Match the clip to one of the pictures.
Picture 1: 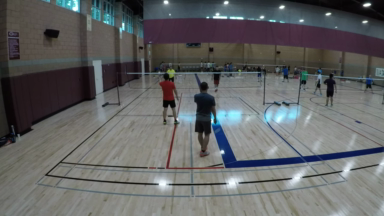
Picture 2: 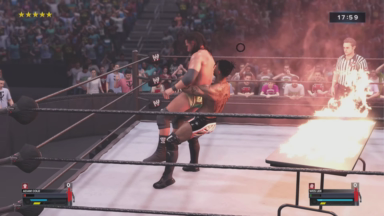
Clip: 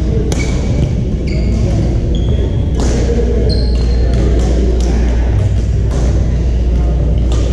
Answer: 1